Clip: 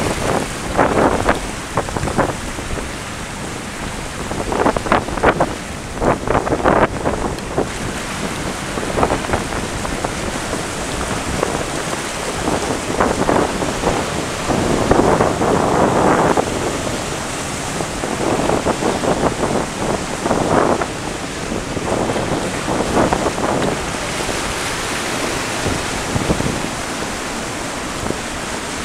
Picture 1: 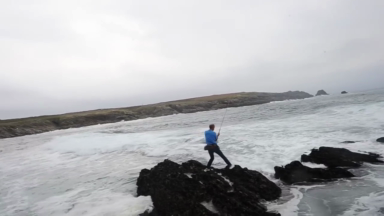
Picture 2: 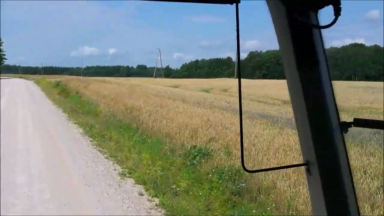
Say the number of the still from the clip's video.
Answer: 1